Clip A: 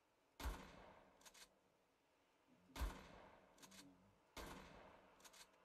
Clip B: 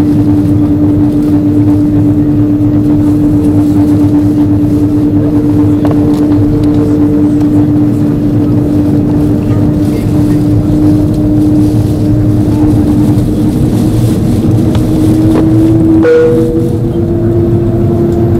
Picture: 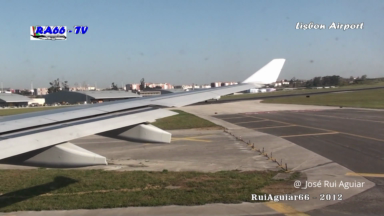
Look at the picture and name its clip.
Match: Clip B